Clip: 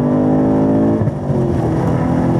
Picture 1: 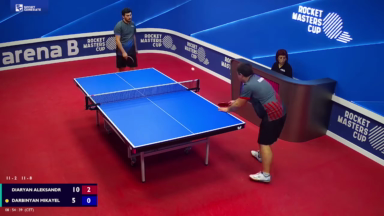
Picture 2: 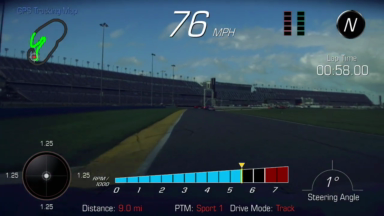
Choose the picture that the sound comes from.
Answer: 2